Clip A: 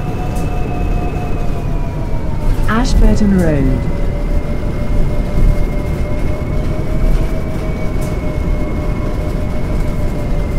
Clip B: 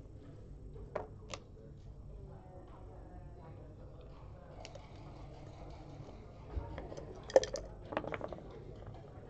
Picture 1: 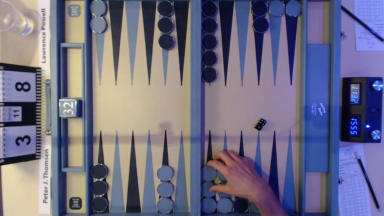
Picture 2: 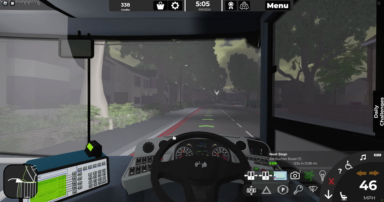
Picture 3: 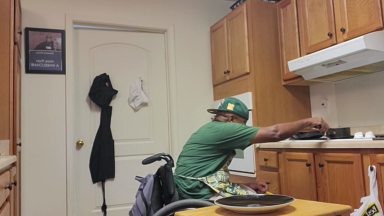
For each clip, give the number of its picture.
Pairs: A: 2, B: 1